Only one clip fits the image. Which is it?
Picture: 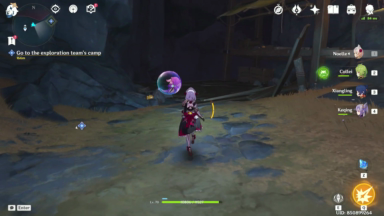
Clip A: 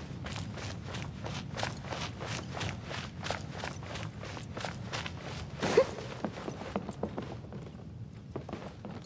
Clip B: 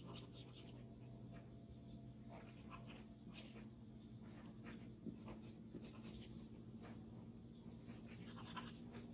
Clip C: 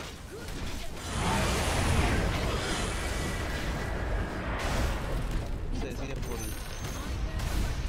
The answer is A